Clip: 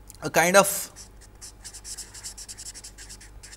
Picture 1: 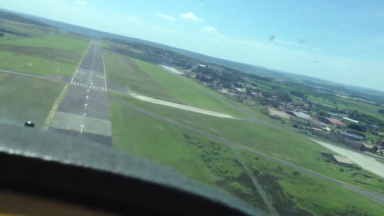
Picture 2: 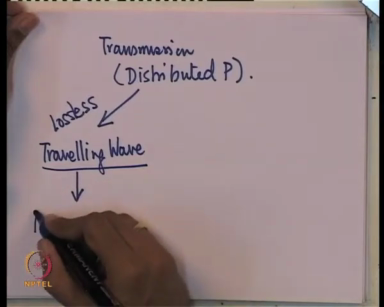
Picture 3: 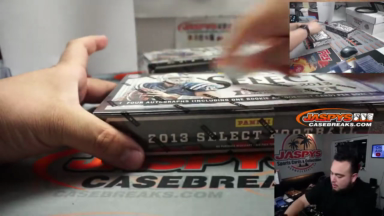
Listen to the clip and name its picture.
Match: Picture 2